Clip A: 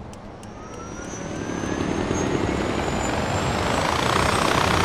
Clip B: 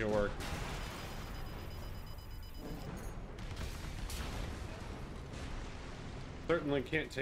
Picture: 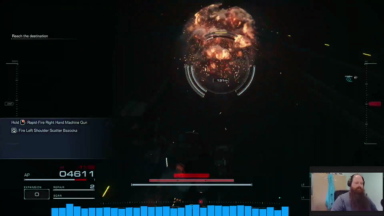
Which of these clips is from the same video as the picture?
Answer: B